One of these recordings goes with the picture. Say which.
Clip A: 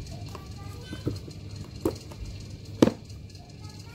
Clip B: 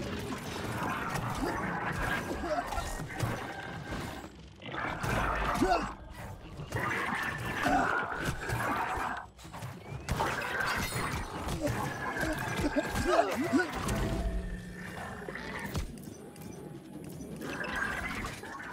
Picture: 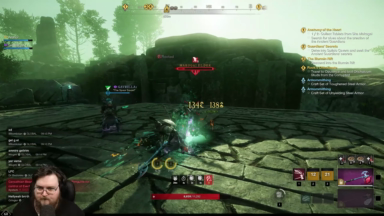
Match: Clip B